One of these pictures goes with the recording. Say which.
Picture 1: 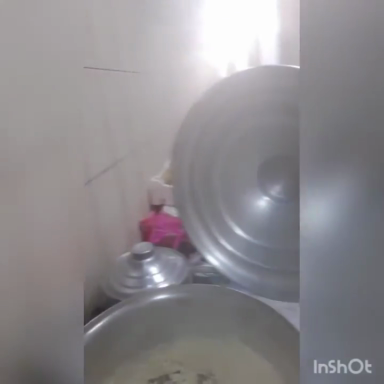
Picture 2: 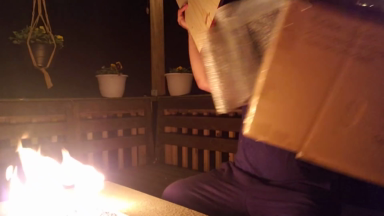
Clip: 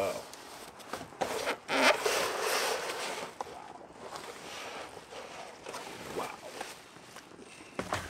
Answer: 2